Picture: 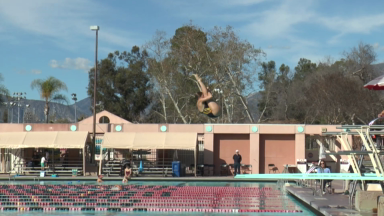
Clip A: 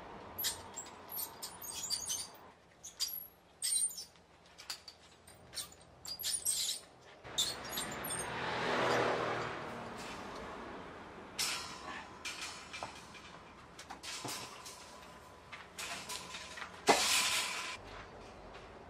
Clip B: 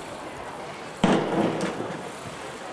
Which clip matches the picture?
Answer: B